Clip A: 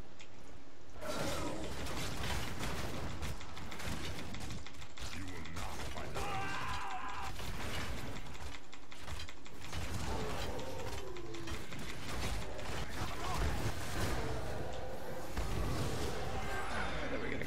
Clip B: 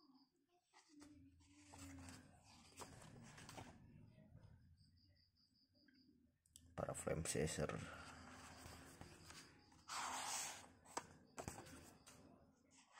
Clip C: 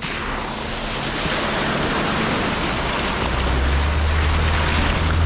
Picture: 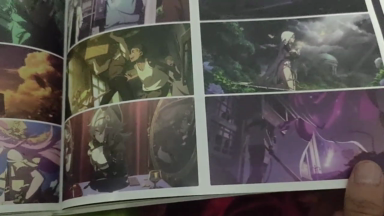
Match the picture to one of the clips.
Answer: B